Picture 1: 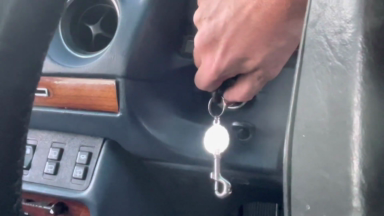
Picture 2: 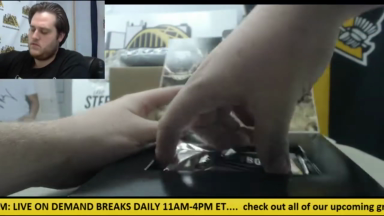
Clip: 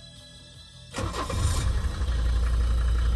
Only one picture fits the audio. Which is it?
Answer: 1